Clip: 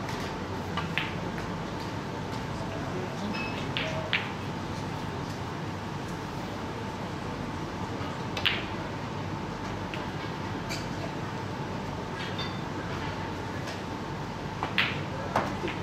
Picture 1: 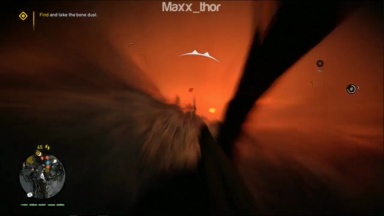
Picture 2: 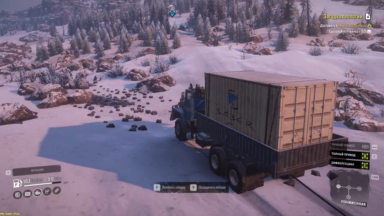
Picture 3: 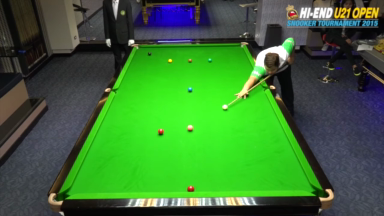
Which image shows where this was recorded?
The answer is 3